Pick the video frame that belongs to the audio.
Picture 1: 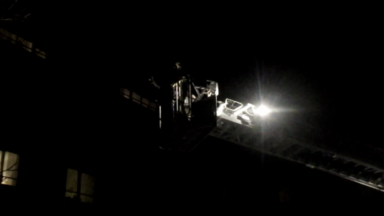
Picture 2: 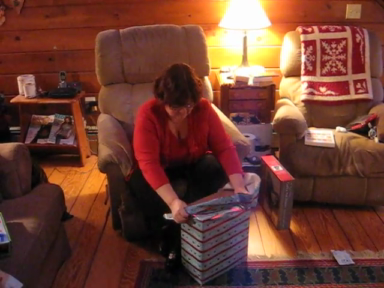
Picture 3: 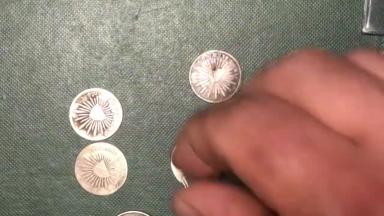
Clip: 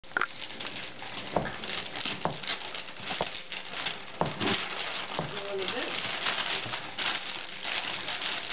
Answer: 2